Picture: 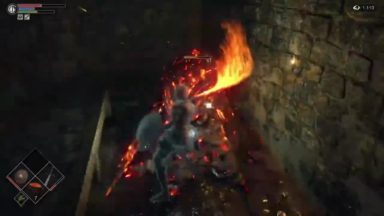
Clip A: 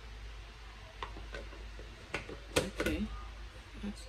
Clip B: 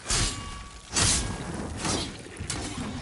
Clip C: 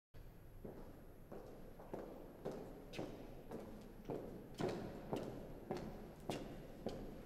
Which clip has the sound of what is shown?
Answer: B